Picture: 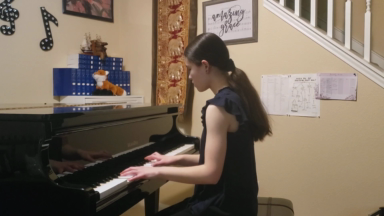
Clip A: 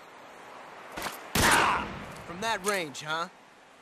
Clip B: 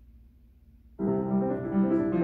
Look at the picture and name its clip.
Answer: B